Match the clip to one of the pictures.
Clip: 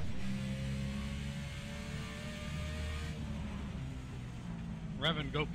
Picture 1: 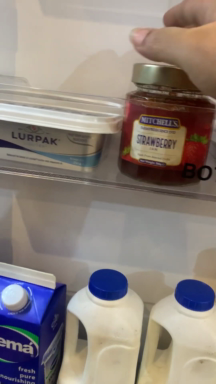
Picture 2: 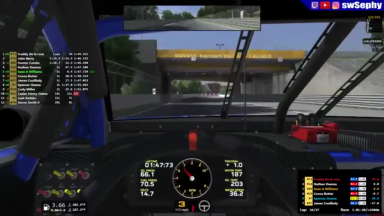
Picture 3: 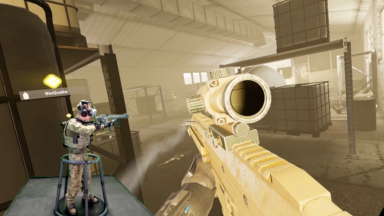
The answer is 2